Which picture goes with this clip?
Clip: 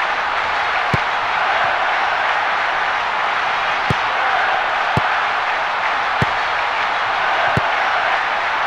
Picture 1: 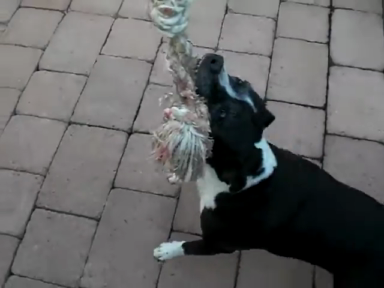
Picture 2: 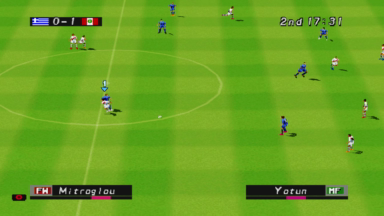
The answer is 2